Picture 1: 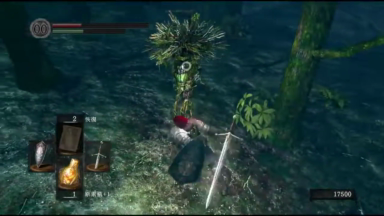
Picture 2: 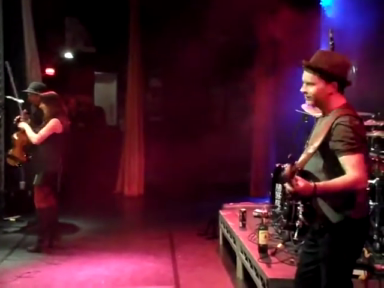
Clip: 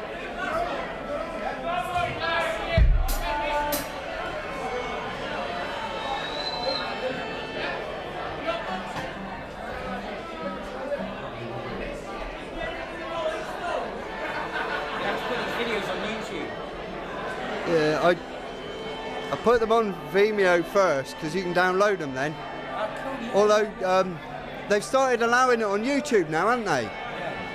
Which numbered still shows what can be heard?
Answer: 2